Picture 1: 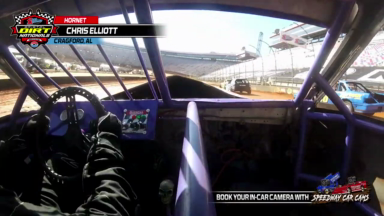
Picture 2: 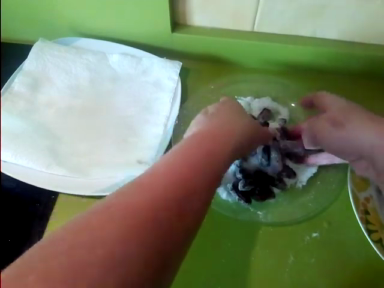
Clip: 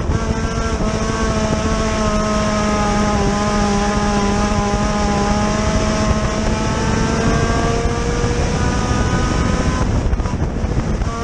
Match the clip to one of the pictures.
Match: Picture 1